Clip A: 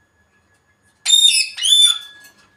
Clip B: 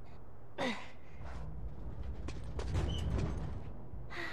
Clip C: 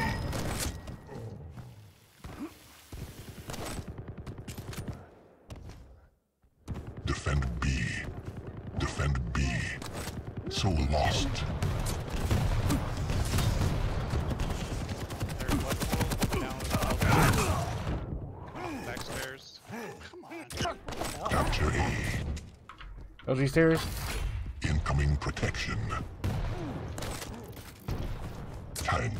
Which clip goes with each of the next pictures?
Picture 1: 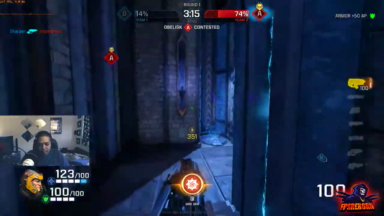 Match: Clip C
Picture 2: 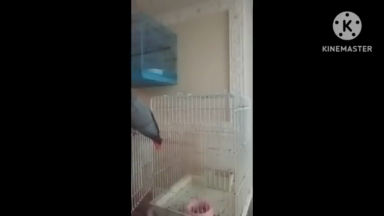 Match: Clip A